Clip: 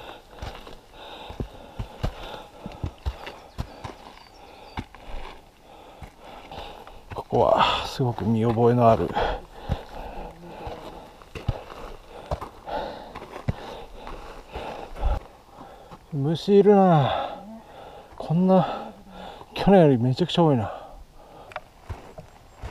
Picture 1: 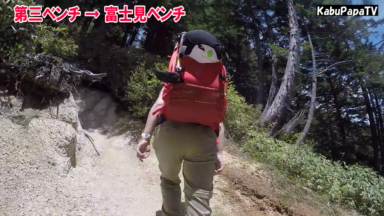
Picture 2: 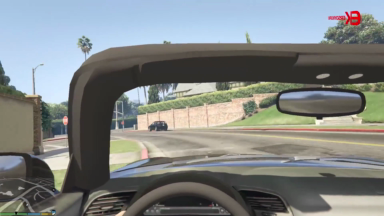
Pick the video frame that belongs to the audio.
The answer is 1